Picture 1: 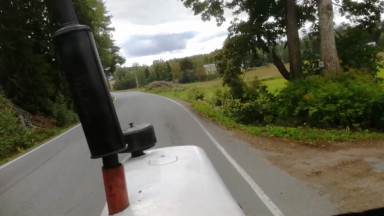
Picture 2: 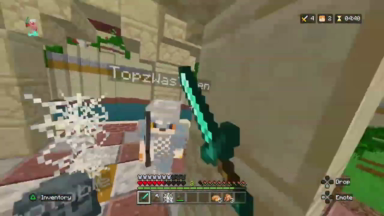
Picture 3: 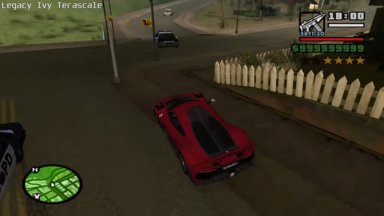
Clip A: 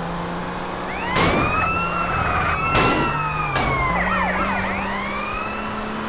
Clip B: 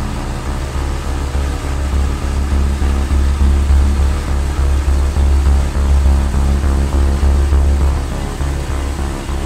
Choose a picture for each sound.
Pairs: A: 3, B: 1